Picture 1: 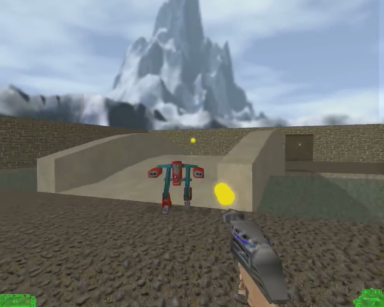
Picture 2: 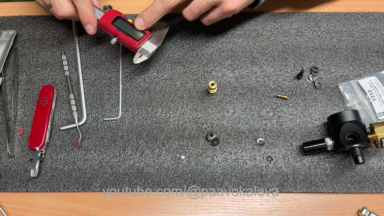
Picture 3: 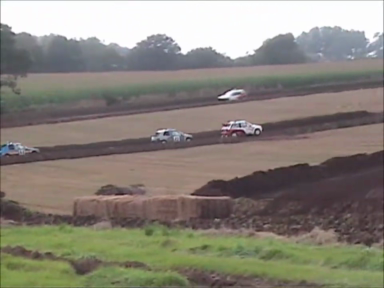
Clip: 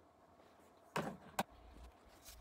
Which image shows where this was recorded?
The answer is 2